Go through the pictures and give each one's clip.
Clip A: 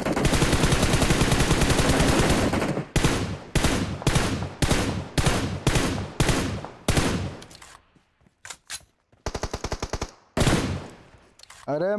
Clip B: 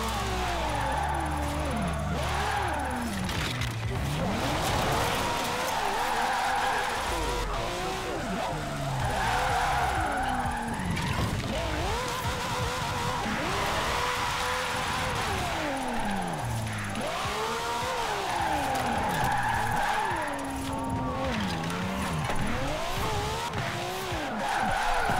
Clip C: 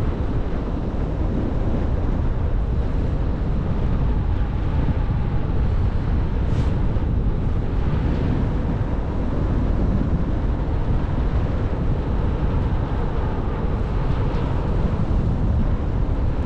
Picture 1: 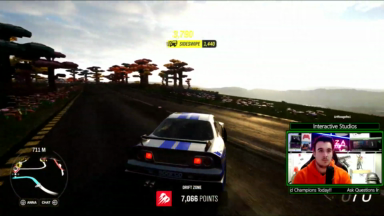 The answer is B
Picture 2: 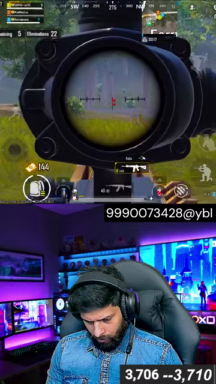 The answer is A